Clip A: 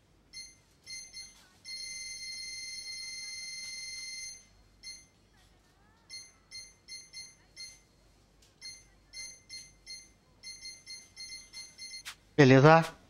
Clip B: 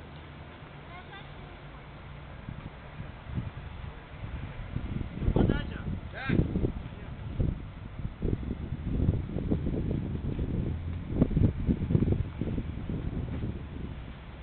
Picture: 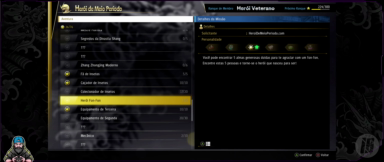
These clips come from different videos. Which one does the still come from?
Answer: A